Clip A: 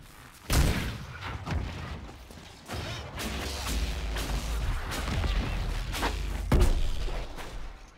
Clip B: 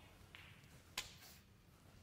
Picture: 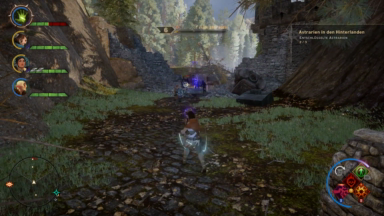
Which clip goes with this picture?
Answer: A